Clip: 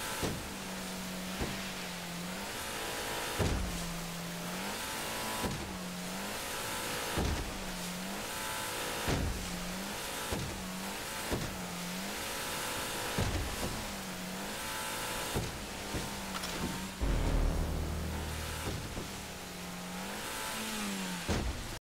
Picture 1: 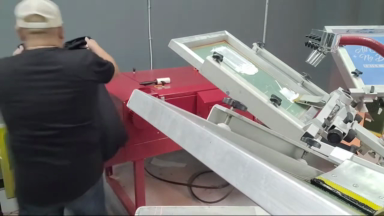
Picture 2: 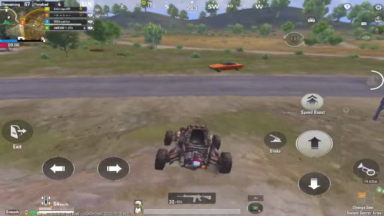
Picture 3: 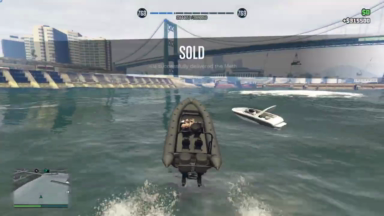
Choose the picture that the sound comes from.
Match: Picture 3